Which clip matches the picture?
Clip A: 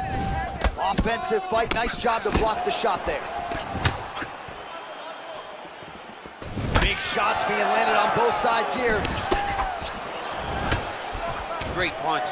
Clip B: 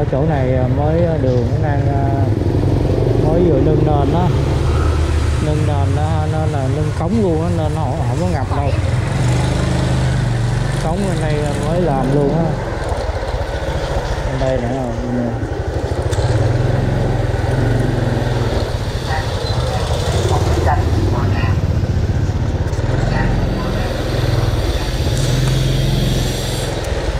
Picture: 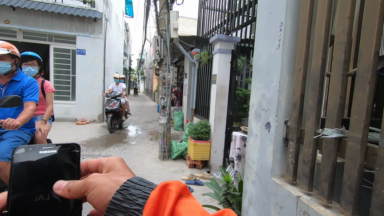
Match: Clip B